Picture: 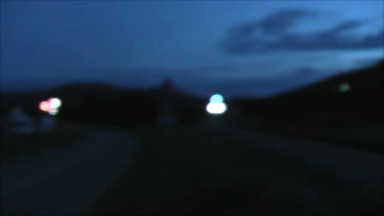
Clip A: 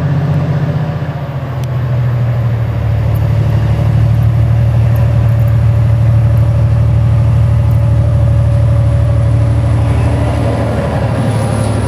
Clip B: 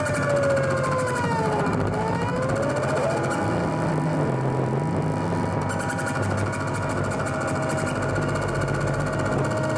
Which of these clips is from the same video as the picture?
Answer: A